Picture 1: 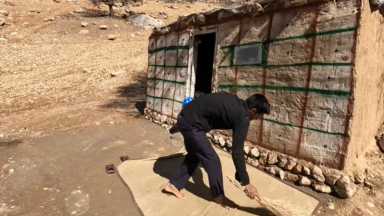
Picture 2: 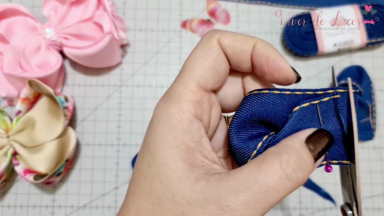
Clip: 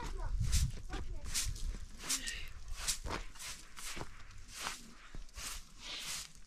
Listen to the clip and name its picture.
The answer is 1